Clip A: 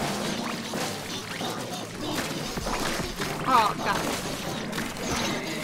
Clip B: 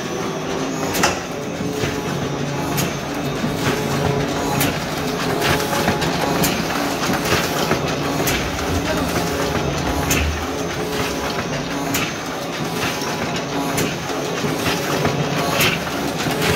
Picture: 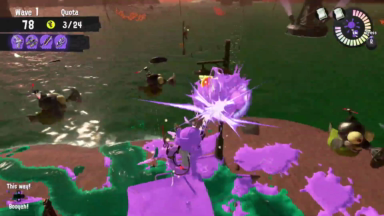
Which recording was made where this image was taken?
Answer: A